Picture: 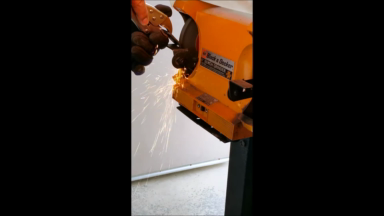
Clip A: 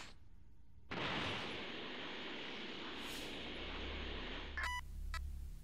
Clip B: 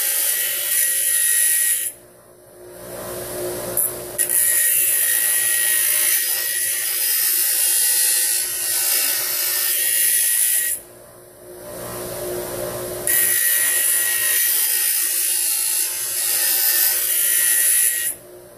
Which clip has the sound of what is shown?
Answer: B